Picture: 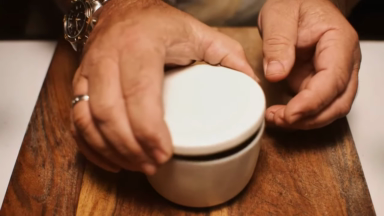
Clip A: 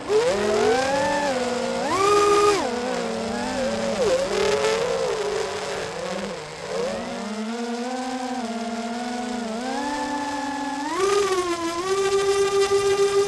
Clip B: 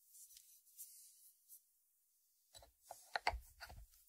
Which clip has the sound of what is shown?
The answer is B